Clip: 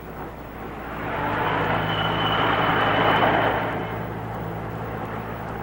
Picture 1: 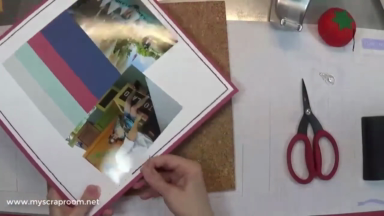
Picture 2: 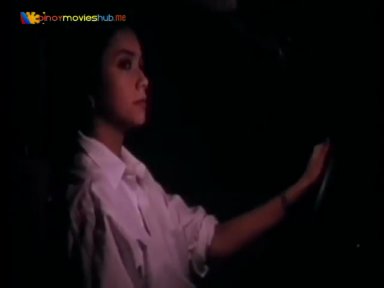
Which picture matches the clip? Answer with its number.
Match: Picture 2